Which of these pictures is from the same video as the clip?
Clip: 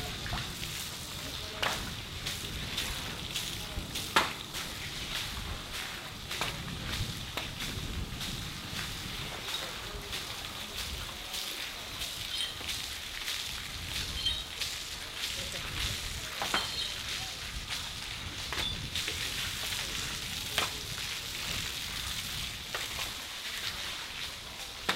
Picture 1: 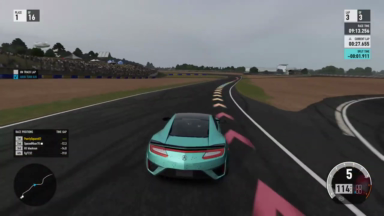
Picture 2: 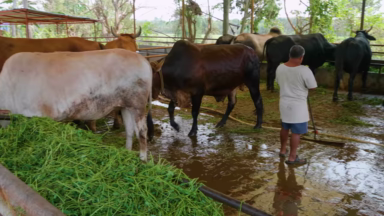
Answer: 2